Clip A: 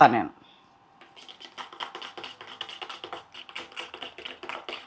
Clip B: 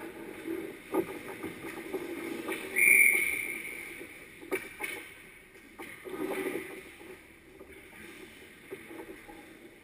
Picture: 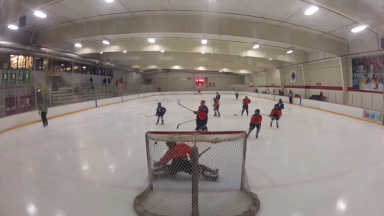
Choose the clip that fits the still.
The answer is B